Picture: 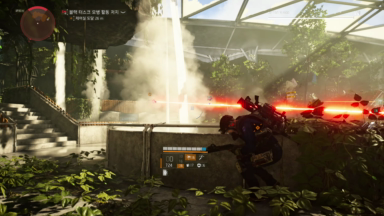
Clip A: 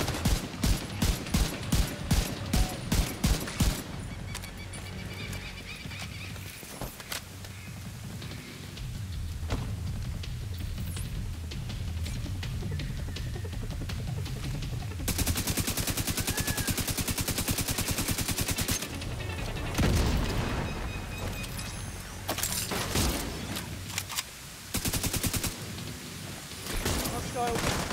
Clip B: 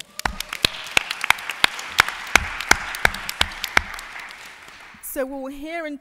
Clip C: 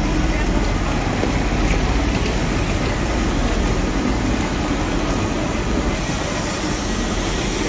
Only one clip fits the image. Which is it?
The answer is A